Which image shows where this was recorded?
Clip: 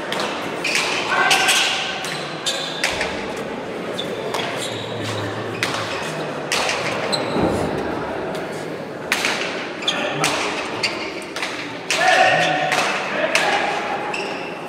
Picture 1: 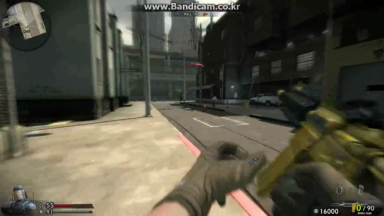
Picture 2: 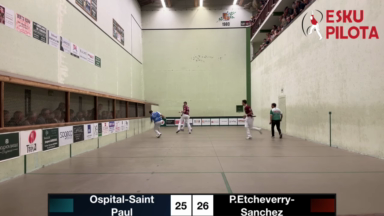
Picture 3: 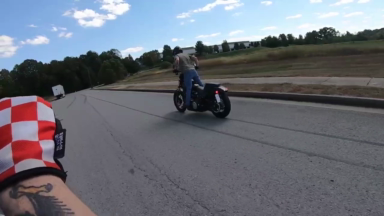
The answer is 2